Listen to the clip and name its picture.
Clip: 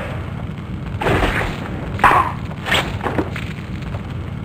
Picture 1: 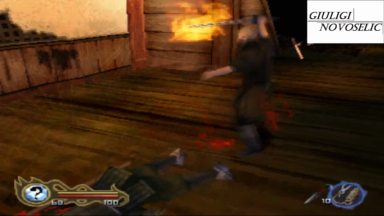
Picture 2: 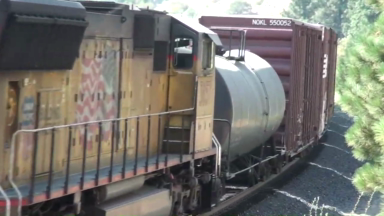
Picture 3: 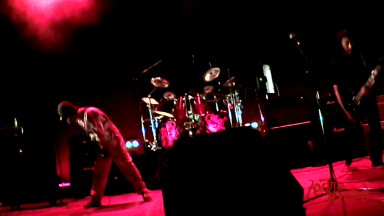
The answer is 1